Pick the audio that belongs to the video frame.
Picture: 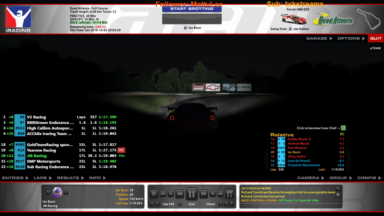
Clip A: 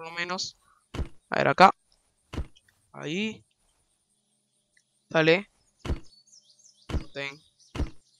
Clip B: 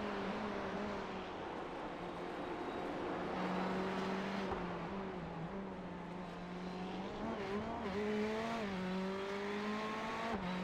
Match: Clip B